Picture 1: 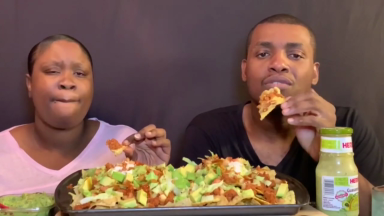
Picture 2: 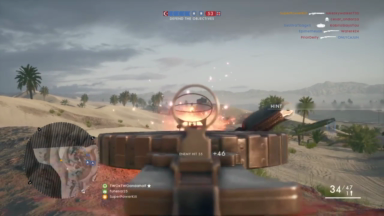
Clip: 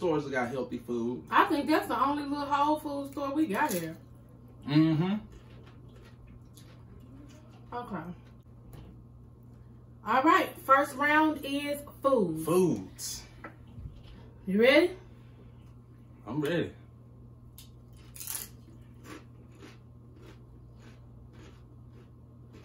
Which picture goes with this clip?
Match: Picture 1